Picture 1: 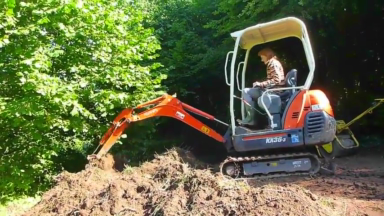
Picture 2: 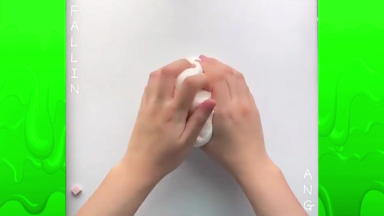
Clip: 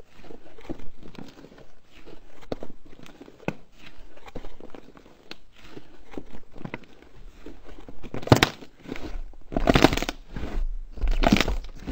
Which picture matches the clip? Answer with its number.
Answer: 2